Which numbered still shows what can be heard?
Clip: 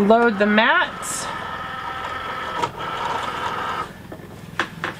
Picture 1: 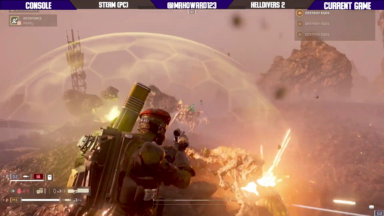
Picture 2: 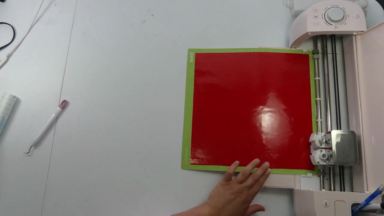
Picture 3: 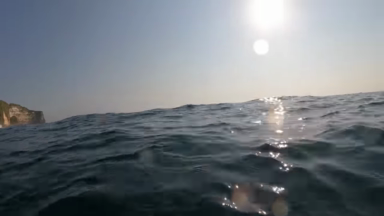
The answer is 2